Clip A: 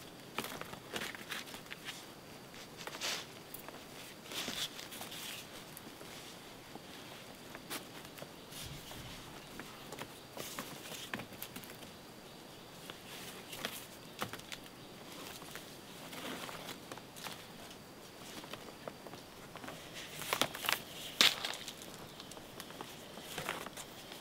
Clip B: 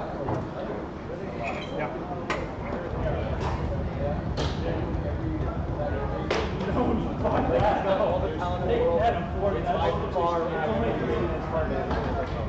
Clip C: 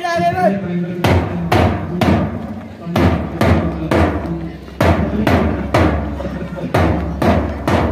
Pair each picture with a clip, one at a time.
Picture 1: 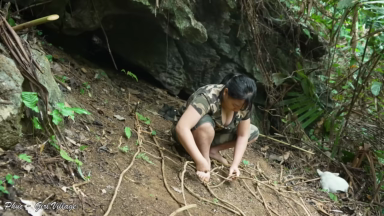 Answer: A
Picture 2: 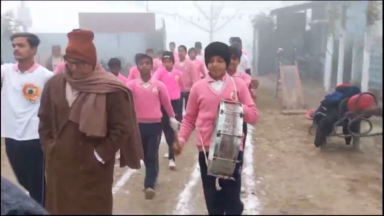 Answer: C